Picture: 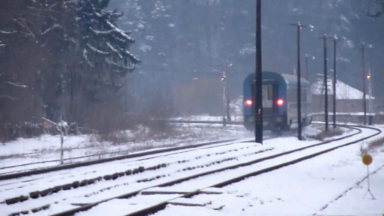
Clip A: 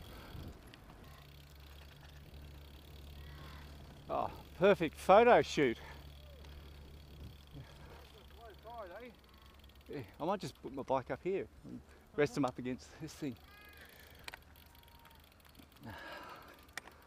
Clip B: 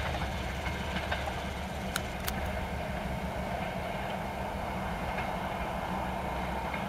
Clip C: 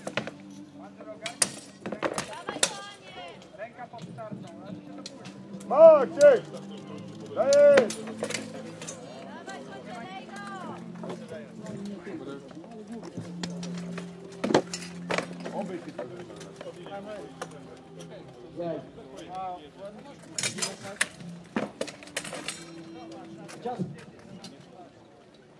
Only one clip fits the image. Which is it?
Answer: B